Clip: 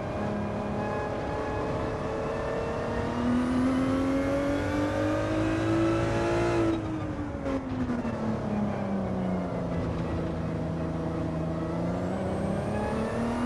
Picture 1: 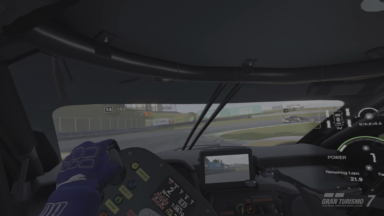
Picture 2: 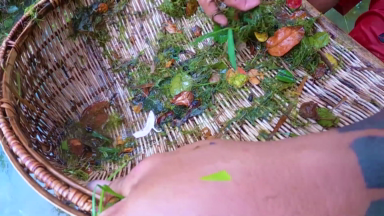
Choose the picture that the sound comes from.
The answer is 1